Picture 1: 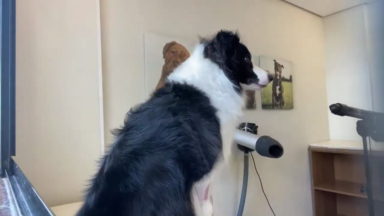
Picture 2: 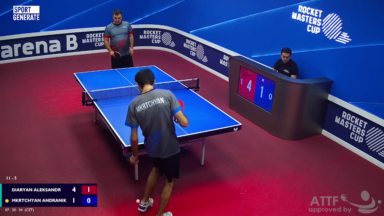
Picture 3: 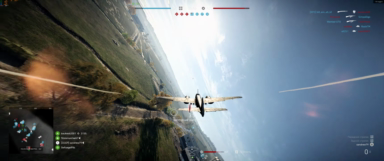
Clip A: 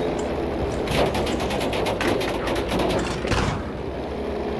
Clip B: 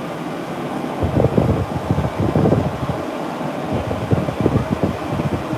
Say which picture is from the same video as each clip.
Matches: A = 3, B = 1